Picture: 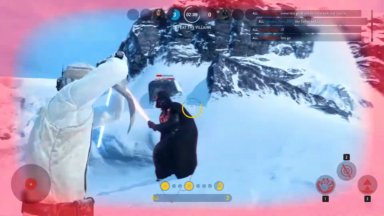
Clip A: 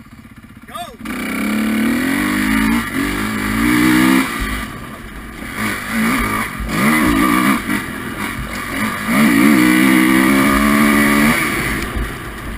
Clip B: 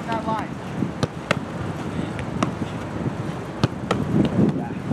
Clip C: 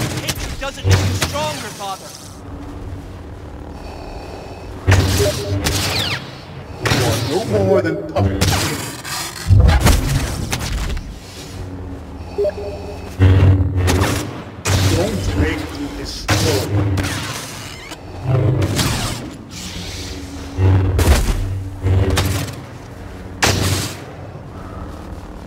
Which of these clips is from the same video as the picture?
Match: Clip C